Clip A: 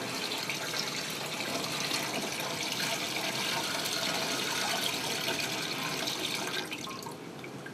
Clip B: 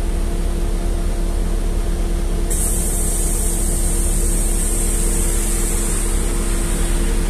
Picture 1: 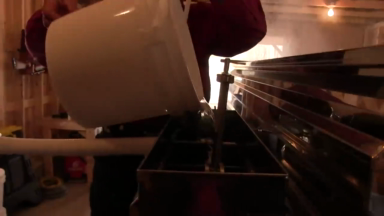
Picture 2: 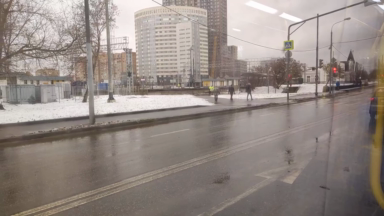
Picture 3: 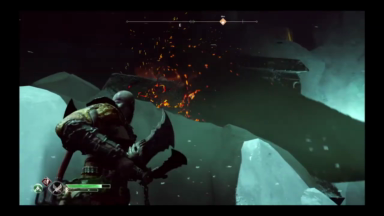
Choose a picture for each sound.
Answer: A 1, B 2